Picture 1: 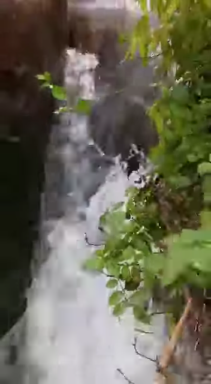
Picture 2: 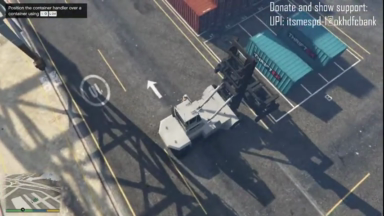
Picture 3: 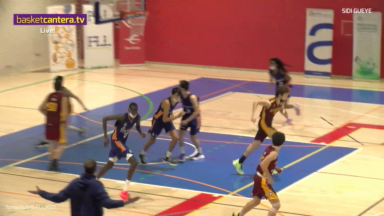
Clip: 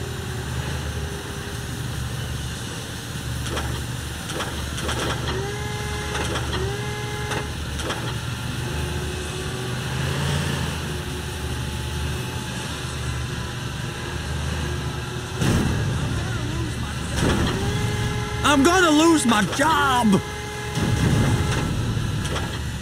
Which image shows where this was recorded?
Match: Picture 2